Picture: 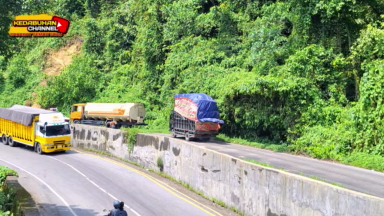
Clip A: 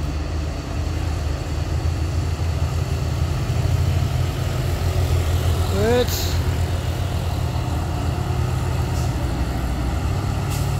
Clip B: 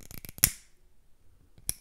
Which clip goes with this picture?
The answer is A